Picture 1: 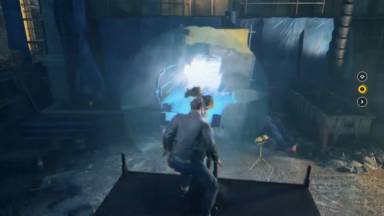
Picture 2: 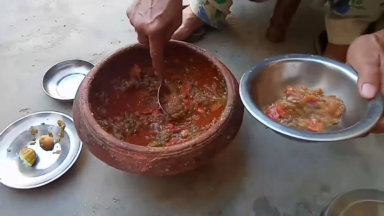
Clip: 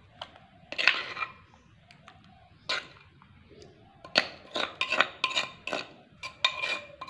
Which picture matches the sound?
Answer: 2